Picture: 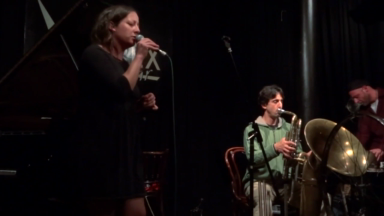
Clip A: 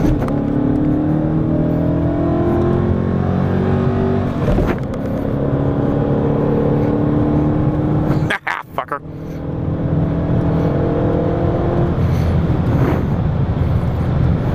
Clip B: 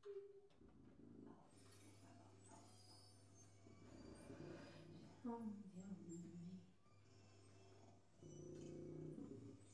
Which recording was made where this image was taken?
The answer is B